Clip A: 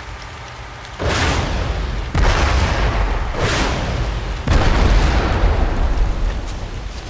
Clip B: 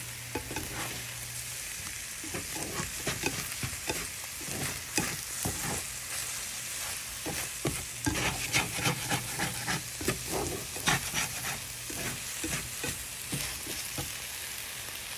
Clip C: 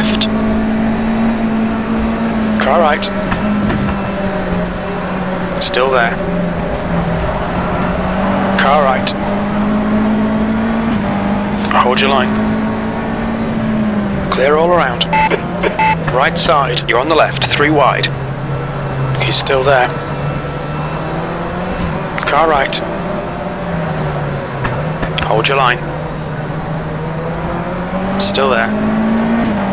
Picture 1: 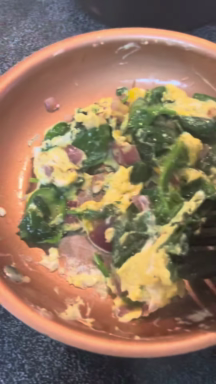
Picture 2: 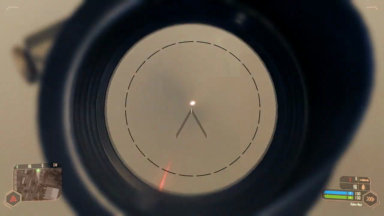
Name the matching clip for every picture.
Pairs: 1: B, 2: A